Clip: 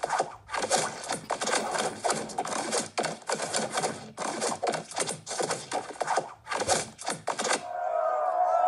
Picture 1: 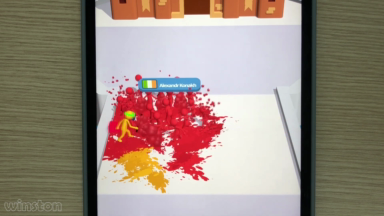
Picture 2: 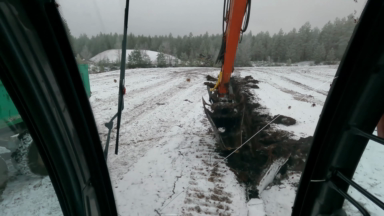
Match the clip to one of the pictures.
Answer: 1